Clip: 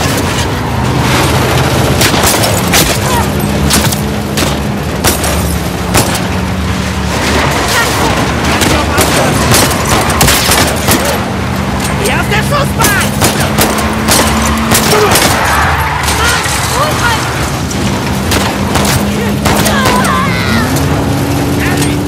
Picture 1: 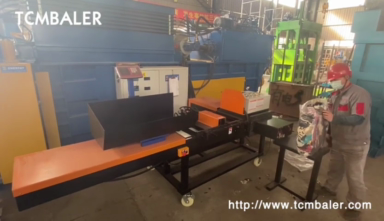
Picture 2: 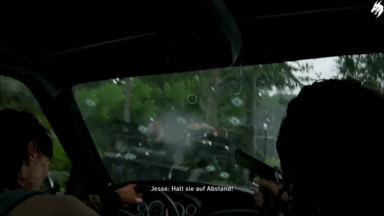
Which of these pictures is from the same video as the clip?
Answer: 2